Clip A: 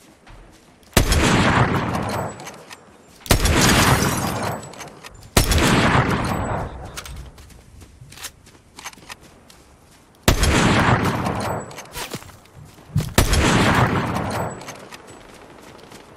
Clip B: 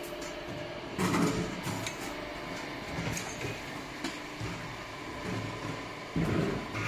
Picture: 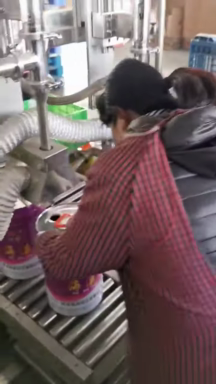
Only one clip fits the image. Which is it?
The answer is B